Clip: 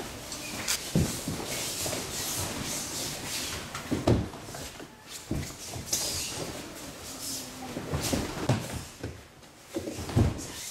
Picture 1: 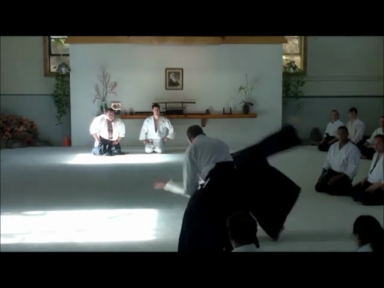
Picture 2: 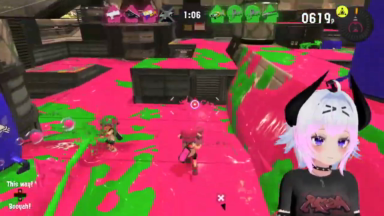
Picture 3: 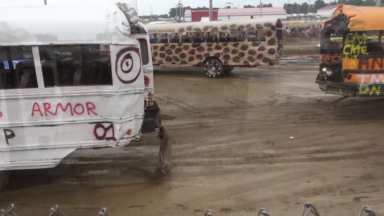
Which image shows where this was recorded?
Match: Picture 1